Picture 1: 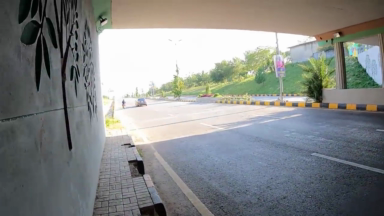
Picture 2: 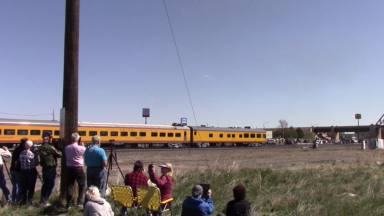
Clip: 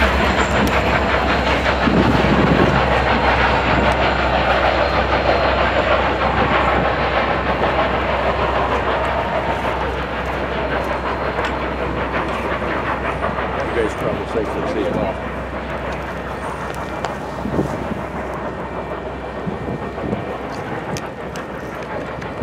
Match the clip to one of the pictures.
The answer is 2